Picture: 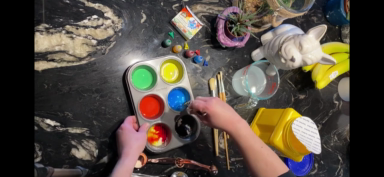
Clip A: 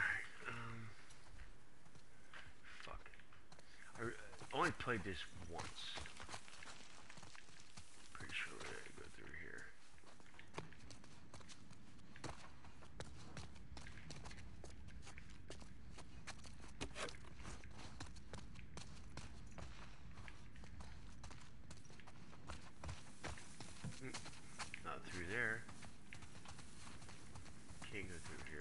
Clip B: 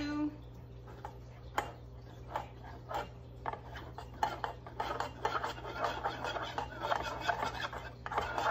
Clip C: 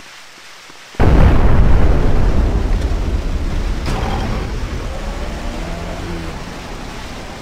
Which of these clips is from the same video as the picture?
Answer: B